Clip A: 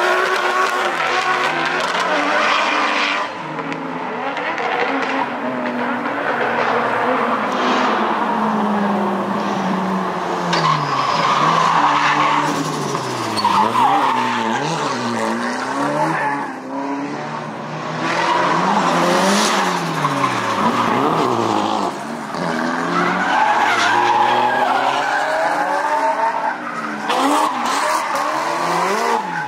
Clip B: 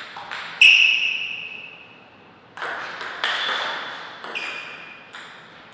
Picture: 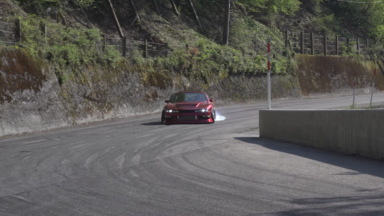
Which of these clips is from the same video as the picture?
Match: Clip A